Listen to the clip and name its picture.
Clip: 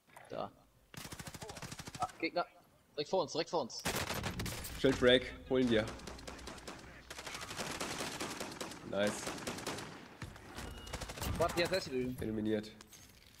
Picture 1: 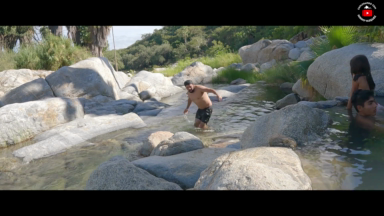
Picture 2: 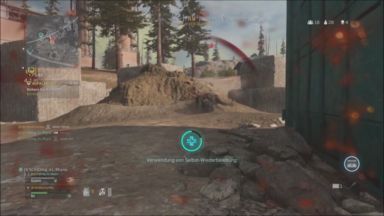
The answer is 2